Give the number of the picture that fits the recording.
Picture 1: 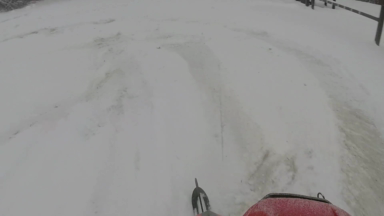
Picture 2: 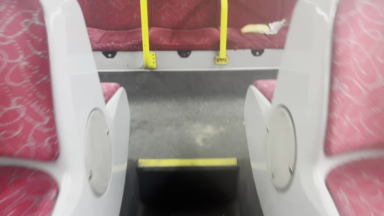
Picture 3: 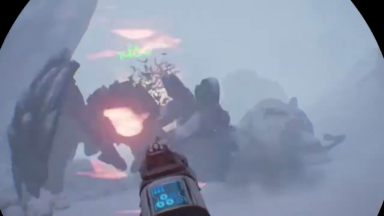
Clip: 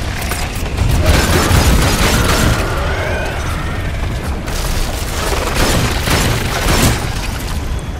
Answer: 3